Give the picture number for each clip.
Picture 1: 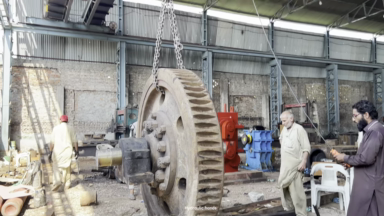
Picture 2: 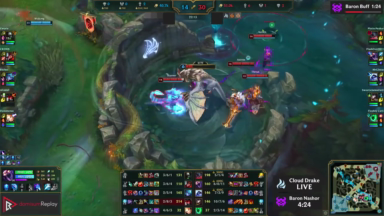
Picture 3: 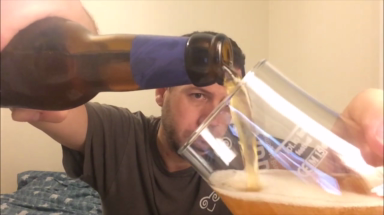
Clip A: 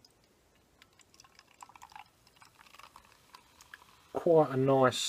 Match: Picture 3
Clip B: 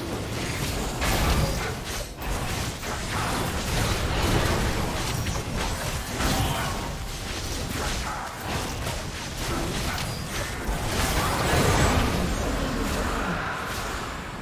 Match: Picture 2